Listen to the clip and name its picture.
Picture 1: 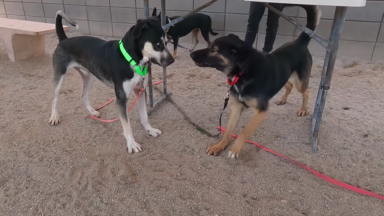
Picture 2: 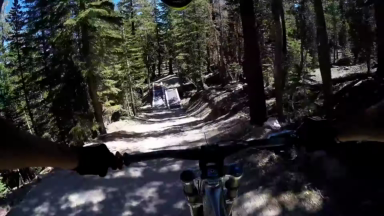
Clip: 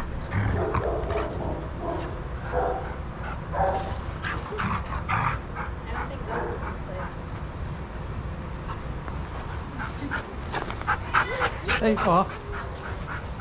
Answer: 1